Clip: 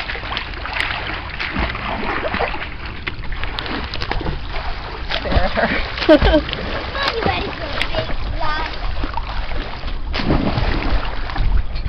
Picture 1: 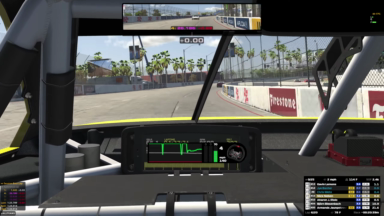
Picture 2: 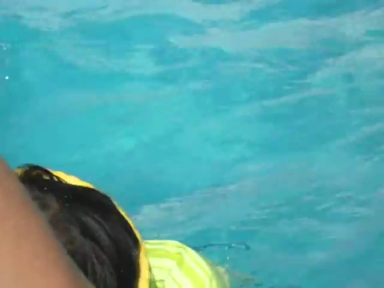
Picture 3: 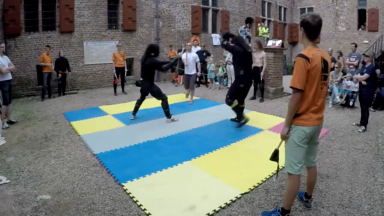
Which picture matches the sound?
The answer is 2